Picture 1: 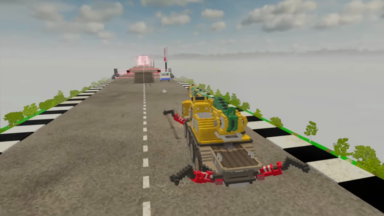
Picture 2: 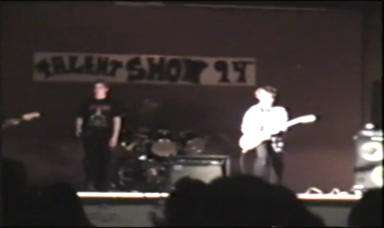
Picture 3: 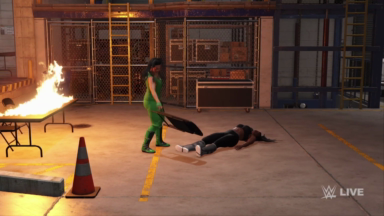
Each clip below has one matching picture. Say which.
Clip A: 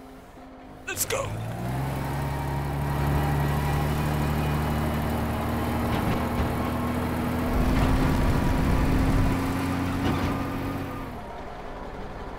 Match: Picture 1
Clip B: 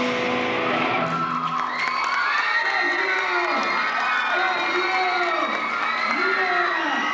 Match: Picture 2